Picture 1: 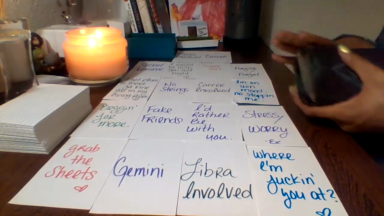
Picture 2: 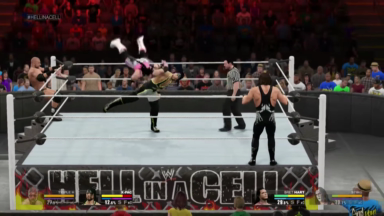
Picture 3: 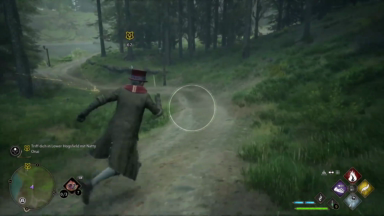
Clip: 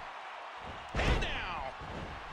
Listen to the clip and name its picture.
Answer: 2